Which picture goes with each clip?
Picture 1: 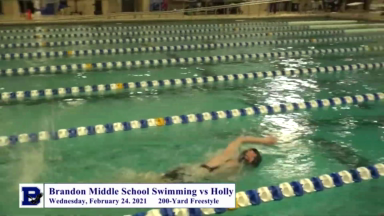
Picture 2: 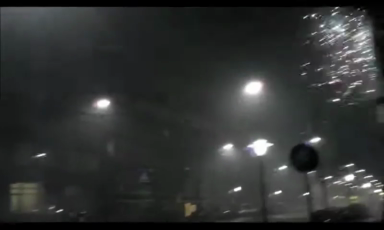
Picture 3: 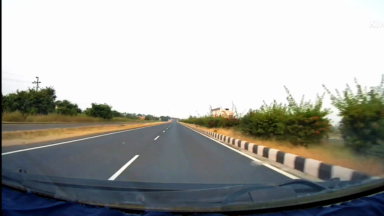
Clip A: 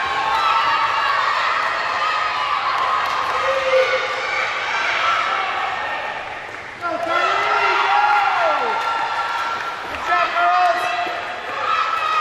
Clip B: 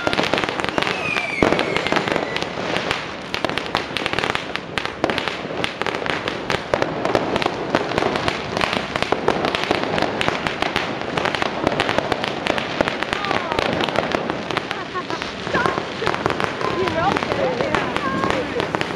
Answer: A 1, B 2